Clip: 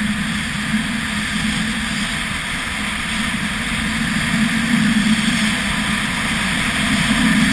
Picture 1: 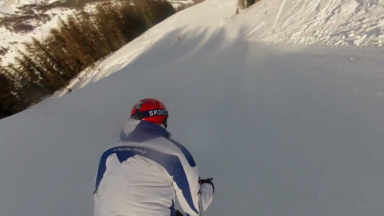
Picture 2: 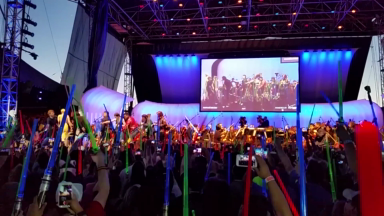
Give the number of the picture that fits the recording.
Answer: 1